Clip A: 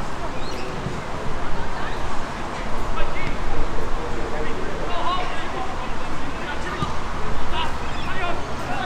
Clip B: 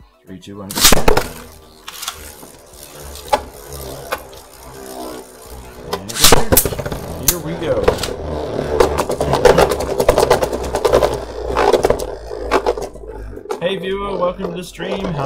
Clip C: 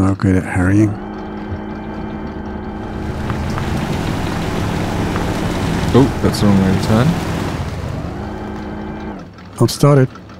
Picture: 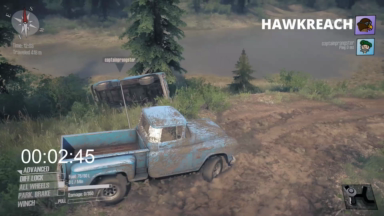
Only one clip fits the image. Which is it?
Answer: C